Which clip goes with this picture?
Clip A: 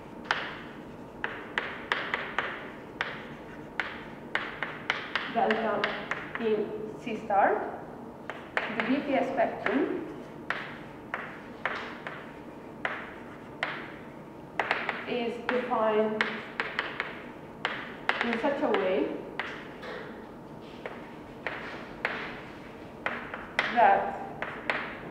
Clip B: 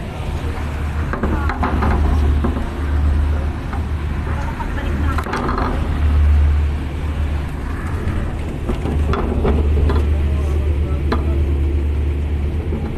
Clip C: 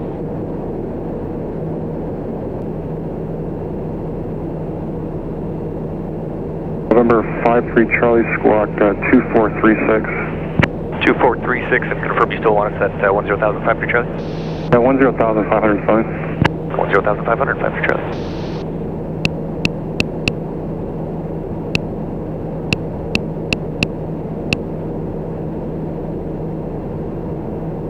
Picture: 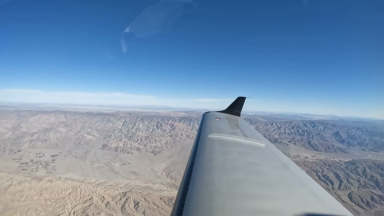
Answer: C